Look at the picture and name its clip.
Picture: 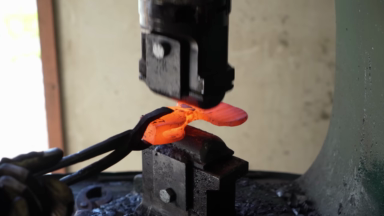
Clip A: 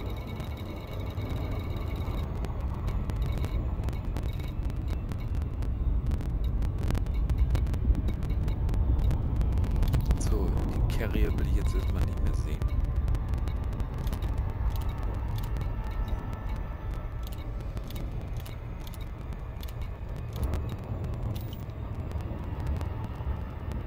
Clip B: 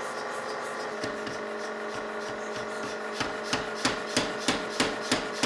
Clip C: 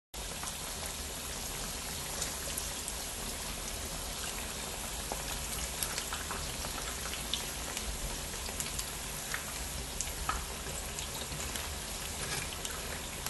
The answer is B